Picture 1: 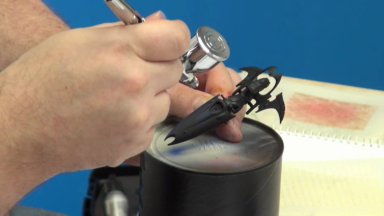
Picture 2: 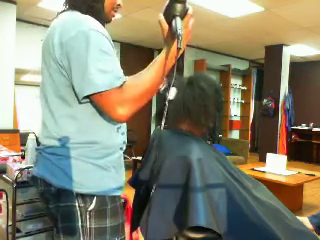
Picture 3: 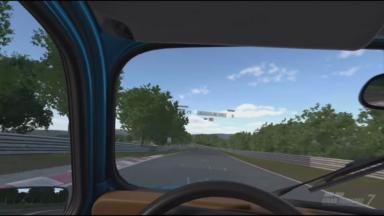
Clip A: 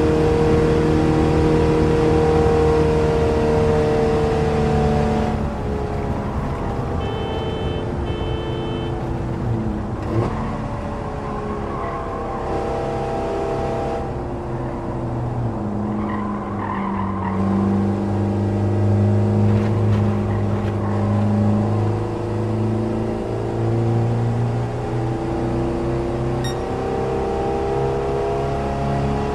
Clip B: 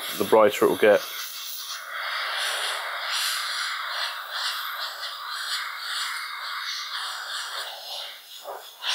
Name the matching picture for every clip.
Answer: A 3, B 1